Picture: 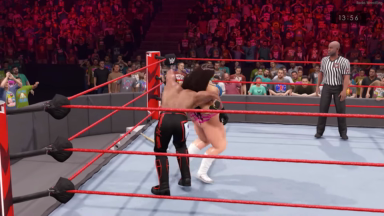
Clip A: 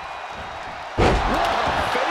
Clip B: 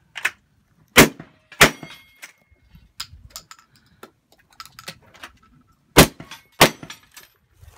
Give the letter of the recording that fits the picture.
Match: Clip A